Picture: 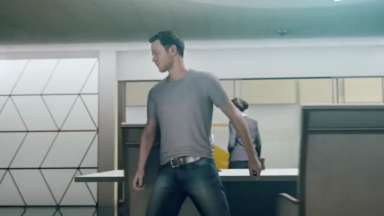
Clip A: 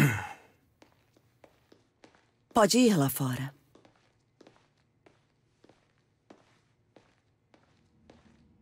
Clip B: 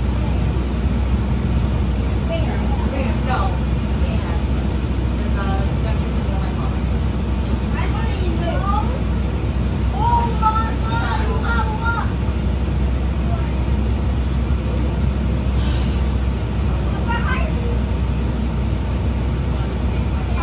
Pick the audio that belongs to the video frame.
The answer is A